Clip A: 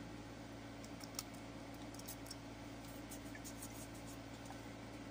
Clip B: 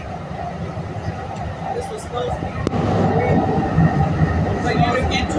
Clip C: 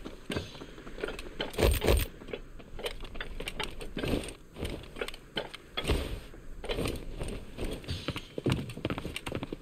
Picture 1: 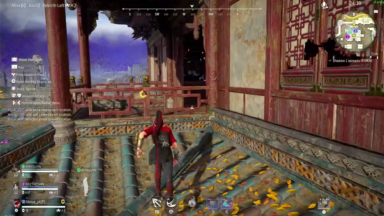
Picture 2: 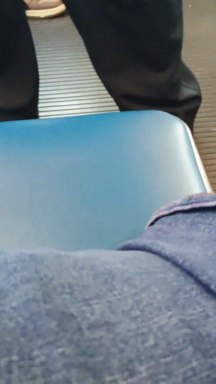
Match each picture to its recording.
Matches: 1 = C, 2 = B